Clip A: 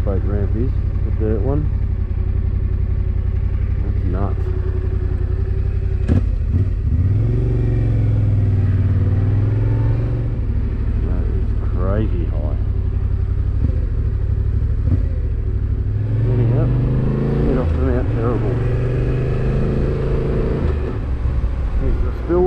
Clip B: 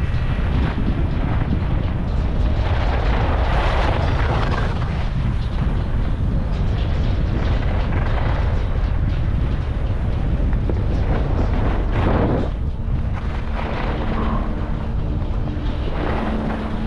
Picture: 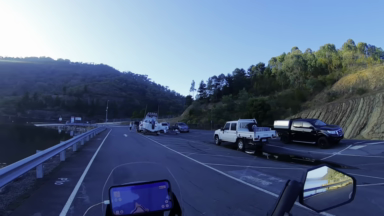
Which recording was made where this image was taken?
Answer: A